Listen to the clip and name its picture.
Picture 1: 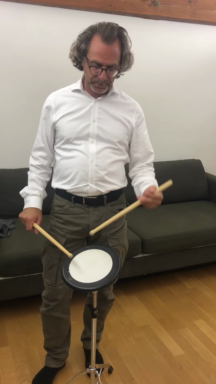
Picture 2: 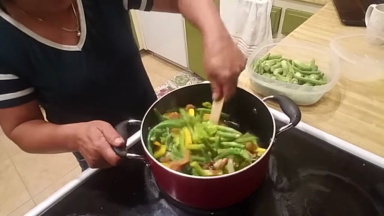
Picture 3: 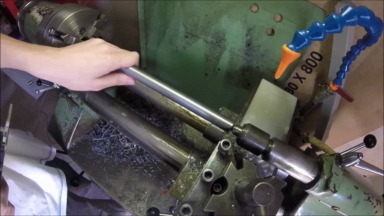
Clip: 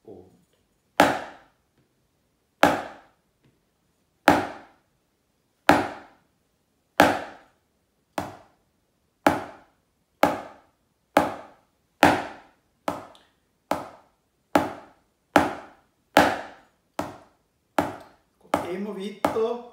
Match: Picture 1